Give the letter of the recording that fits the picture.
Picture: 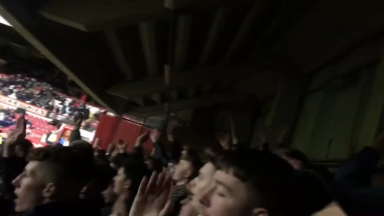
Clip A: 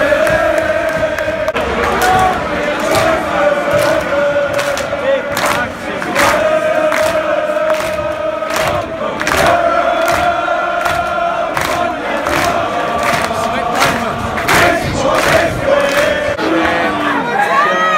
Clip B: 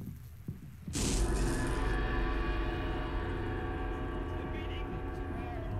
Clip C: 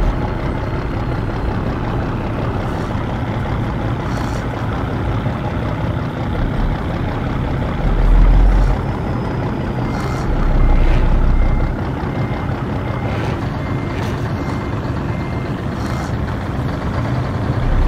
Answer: A